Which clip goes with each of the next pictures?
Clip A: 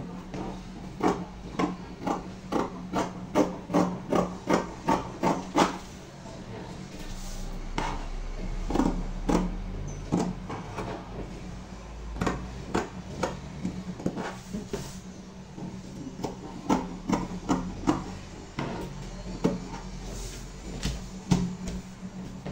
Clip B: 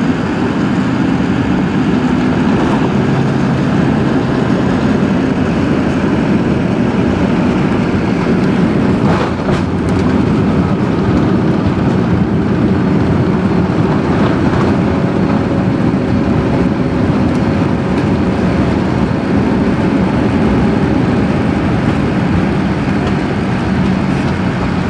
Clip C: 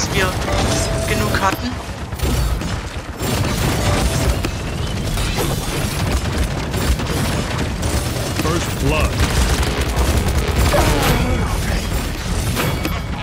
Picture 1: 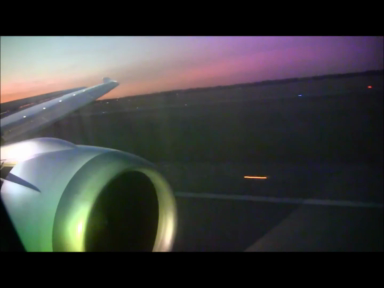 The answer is B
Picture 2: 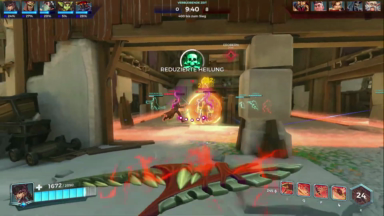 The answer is C